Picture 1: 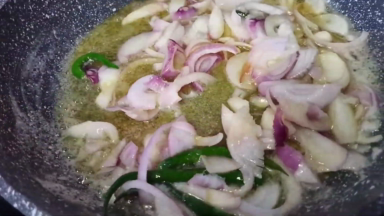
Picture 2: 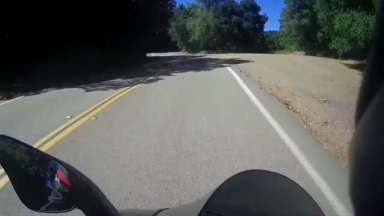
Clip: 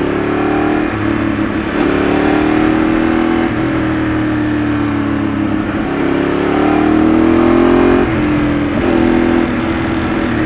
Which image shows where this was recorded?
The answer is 2